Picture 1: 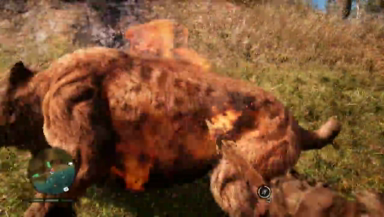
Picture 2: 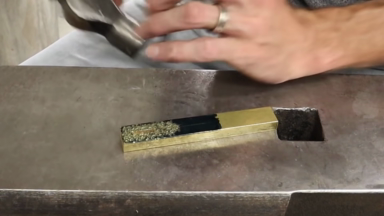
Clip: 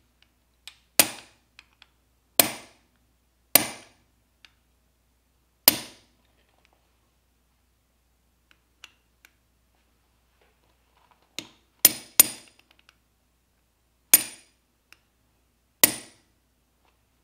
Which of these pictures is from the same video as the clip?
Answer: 2